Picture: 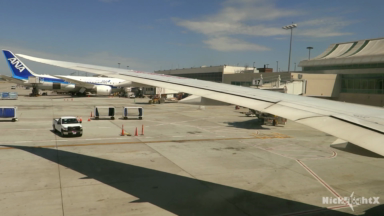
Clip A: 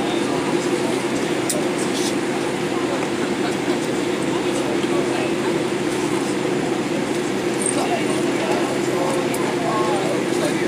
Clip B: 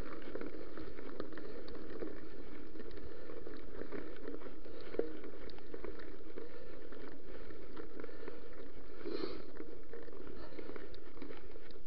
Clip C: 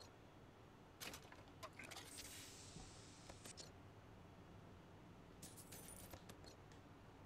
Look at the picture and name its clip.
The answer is A